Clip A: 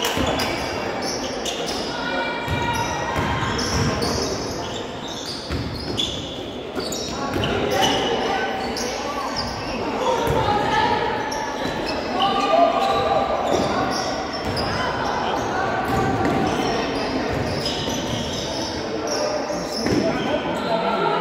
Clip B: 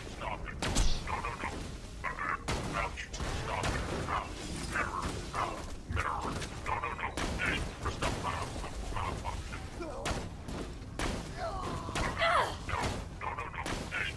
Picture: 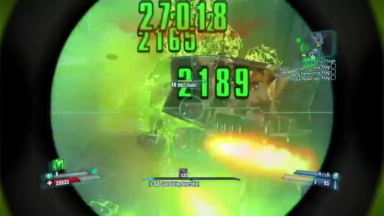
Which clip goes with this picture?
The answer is B